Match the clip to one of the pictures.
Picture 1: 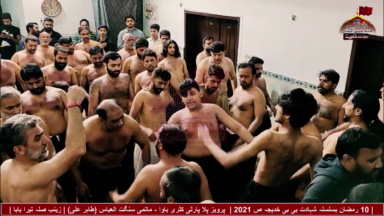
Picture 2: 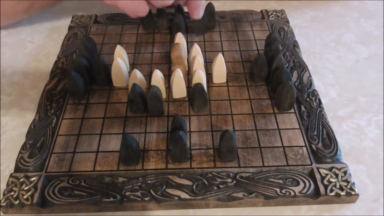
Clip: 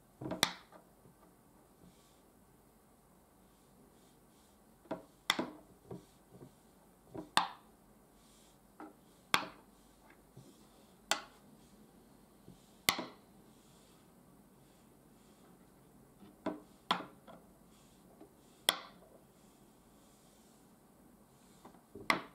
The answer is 2